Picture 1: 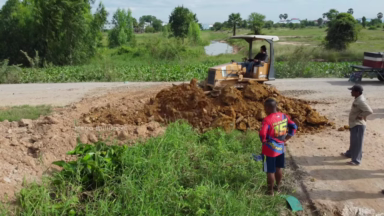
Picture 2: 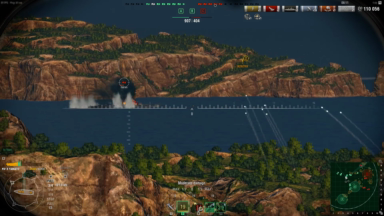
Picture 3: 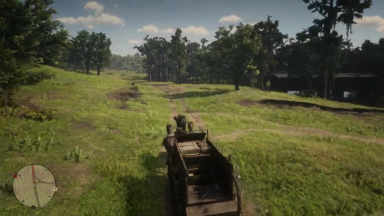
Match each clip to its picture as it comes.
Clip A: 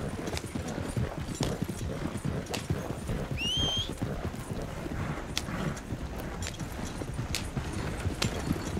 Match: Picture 3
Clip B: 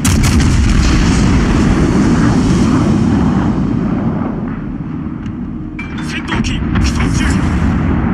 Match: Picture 2